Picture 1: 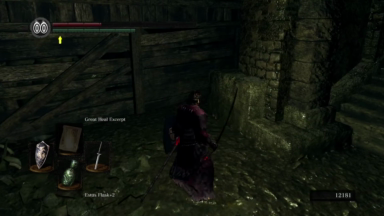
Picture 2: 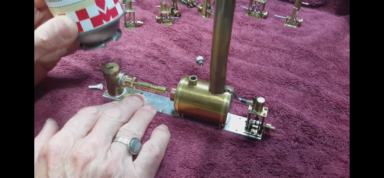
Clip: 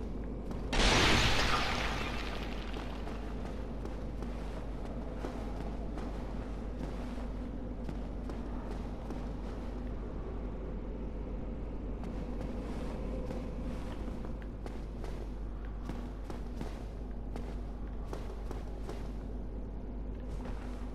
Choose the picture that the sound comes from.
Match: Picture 1